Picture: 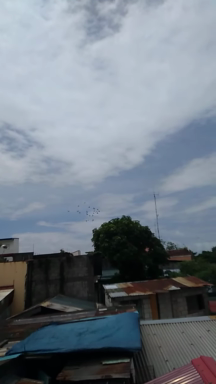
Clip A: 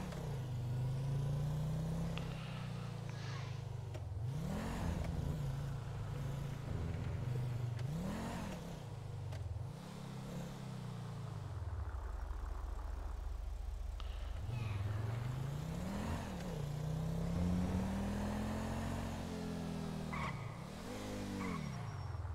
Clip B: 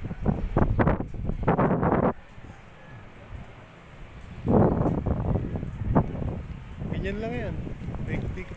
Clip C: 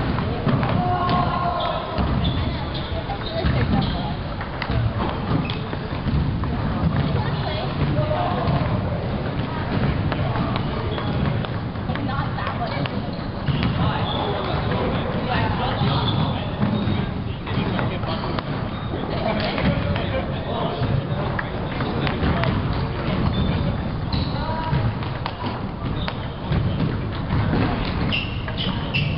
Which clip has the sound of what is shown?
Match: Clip B